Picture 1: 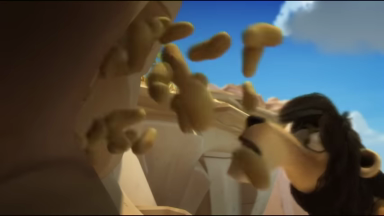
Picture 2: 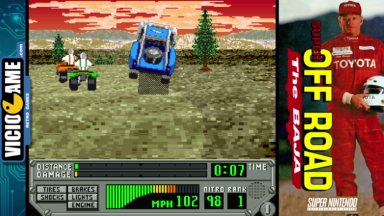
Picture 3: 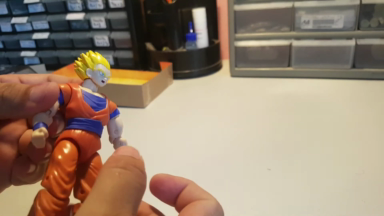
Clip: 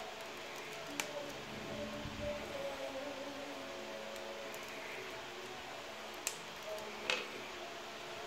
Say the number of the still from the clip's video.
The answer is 3